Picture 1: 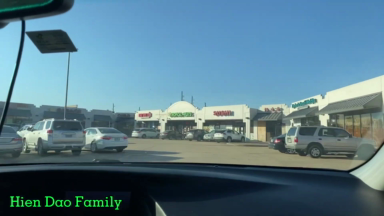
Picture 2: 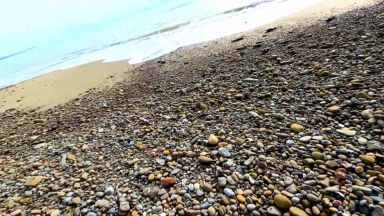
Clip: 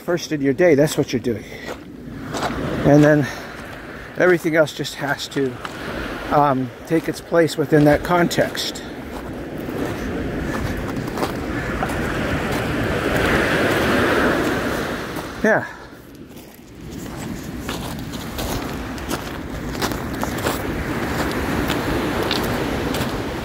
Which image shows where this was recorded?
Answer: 2